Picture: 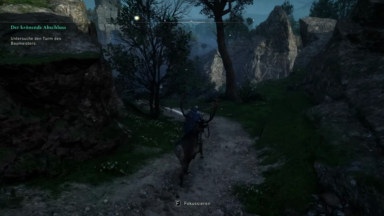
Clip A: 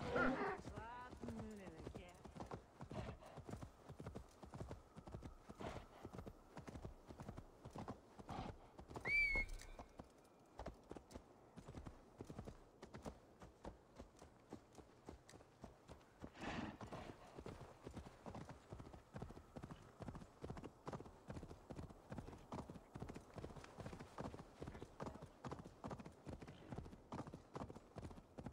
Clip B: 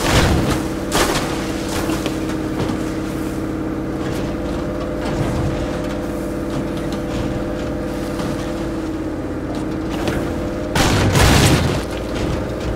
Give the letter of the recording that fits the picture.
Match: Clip A